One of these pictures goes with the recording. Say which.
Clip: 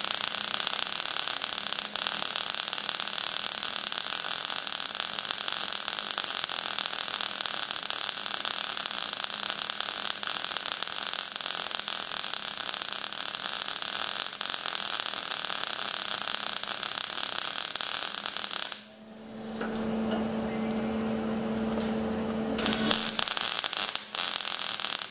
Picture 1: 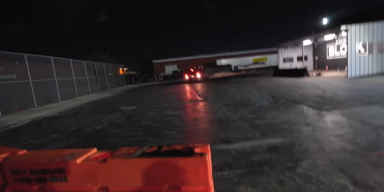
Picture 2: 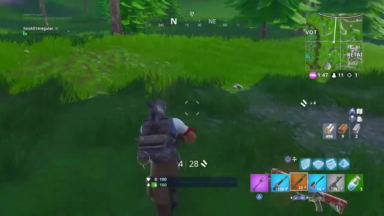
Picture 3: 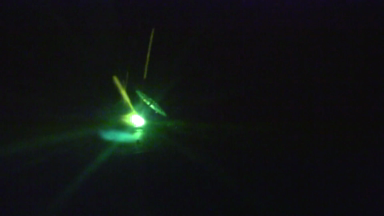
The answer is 3